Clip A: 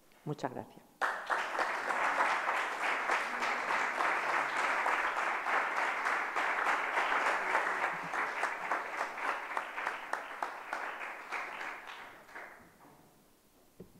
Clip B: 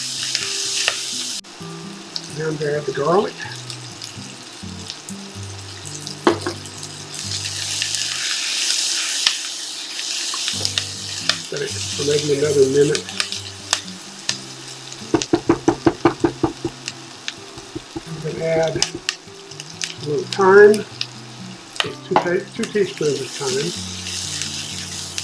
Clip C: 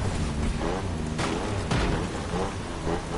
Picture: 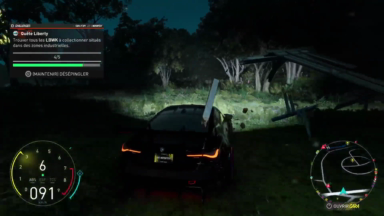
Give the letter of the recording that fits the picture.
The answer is C